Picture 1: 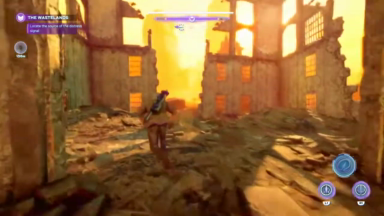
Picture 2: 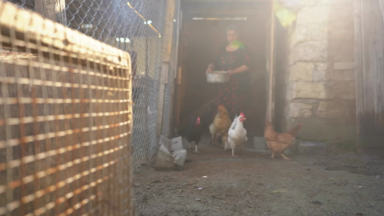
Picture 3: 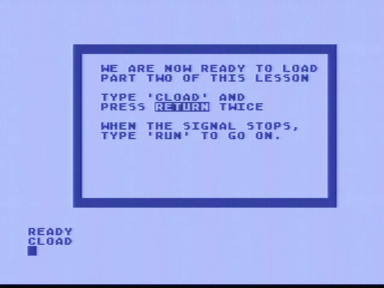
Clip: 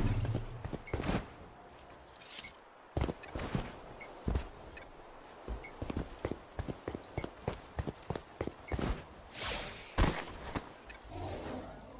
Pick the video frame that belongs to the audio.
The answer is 1